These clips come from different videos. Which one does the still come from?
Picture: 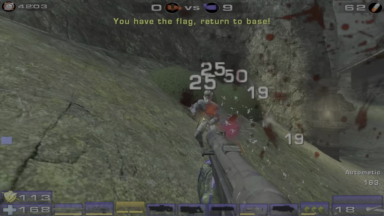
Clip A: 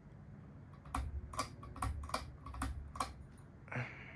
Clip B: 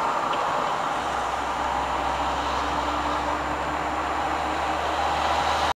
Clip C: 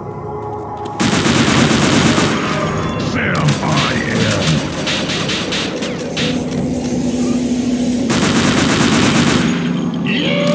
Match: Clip C